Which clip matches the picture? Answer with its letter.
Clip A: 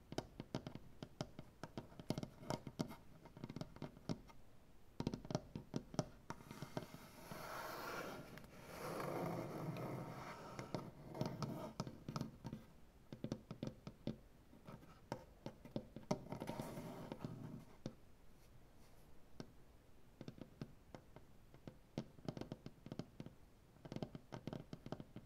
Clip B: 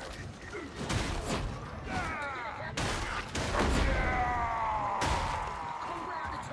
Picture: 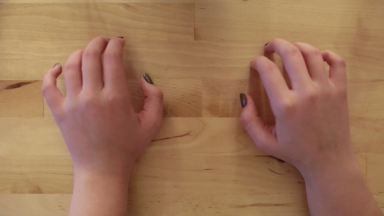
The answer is A